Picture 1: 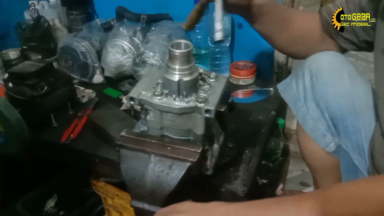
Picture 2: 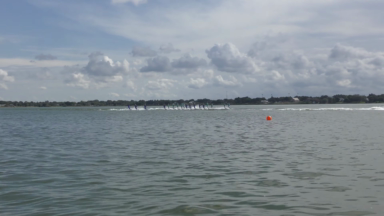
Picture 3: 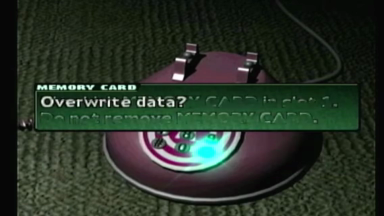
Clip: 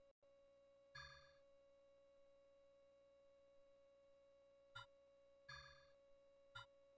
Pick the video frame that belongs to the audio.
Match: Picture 3